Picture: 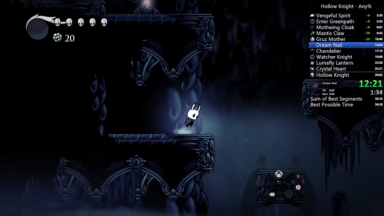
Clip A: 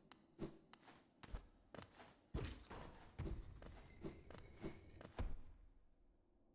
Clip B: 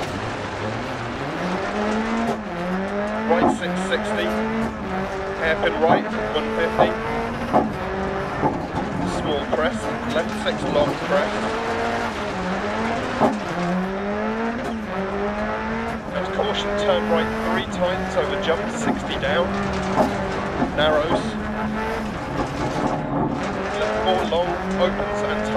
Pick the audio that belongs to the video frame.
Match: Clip A